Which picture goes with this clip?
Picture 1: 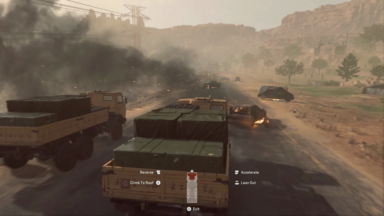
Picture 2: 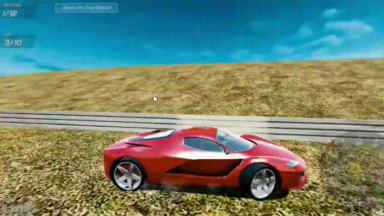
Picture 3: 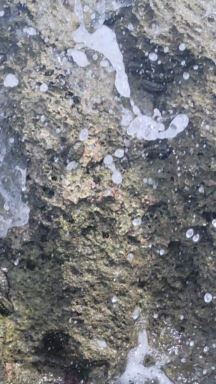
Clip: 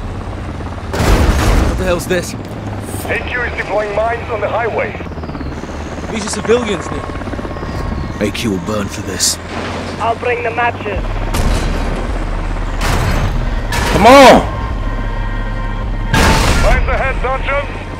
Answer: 1